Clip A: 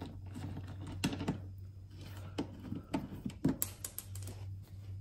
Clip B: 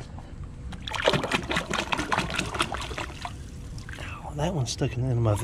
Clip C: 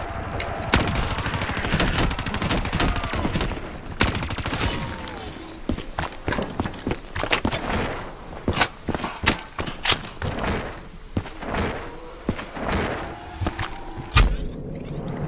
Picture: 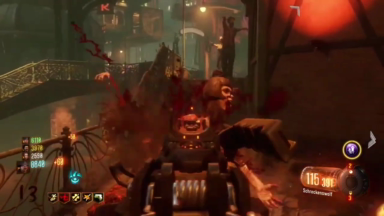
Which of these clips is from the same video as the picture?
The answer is C